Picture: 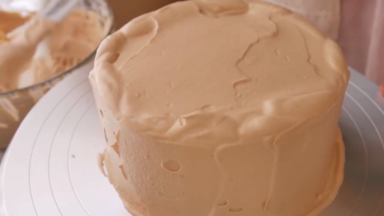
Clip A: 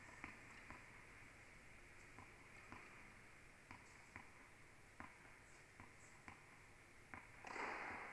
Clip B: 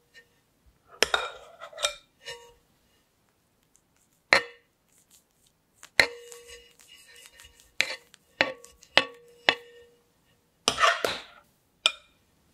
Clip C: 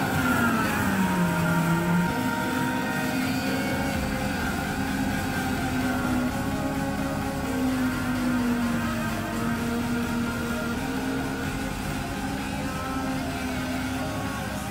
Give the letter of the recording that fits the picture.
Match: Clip B